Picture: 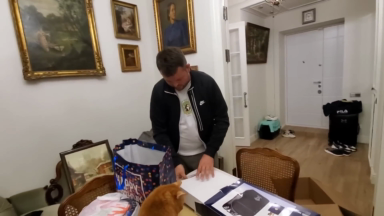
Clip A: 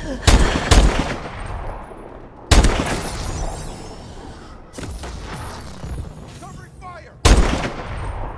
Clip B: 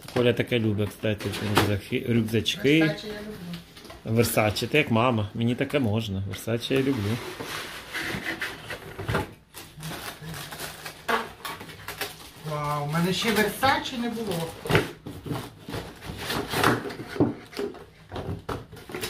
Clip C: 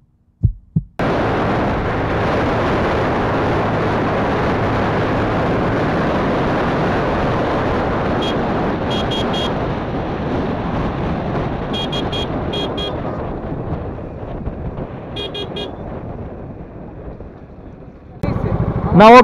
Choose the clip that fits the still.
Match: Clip B